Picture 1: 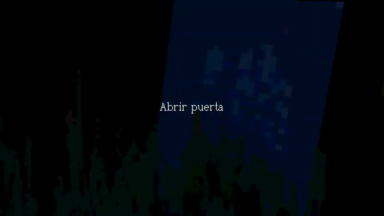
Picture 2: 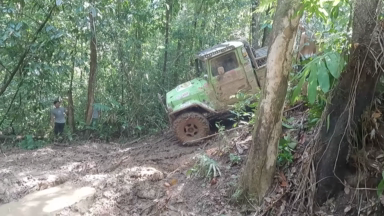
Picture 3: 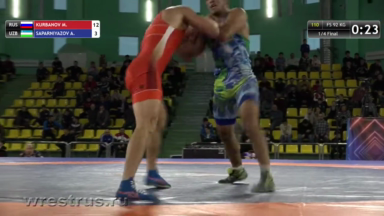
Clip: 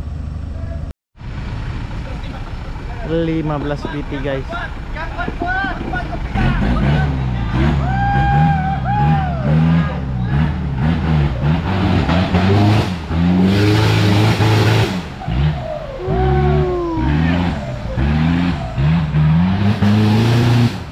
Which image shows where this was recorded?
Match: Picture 2